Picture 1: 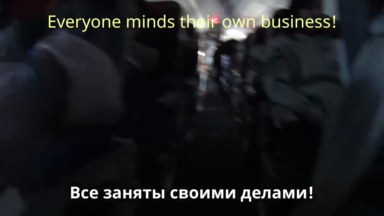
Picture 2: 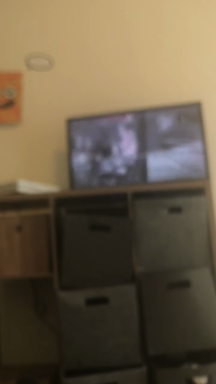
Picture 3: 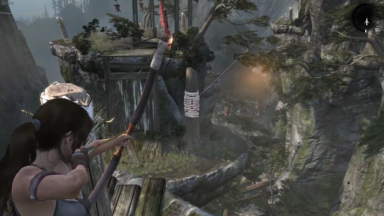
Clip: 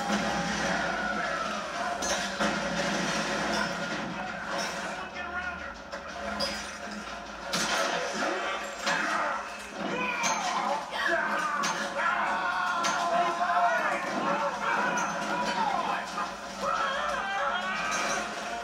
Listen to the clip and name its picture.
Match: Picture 2